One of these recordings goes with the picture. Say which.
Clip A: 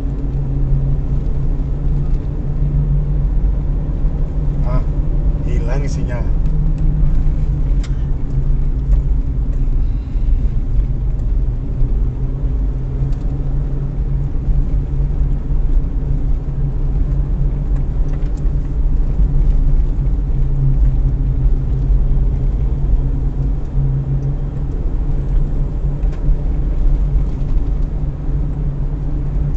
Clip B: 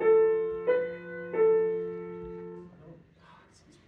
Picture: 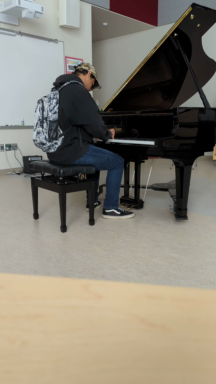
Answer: B